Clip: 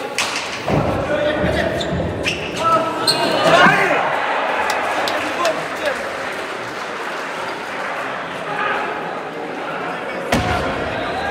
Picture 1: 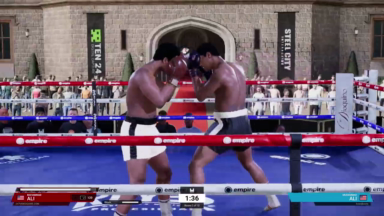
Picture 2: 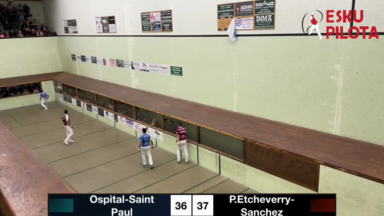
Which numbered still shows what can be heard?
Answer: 2